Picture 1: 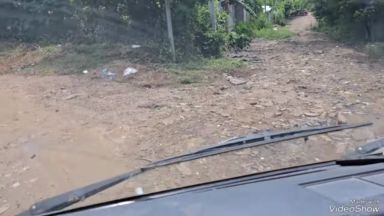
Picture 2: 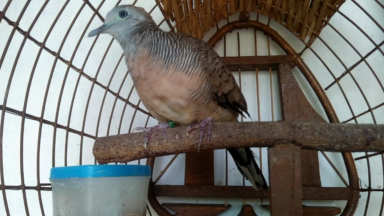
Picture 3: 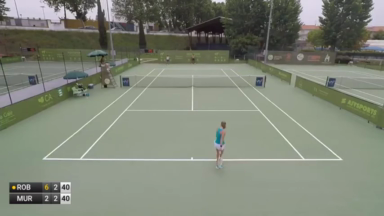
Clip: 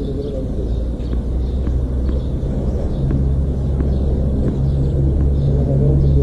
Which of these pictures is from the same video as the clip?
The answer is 3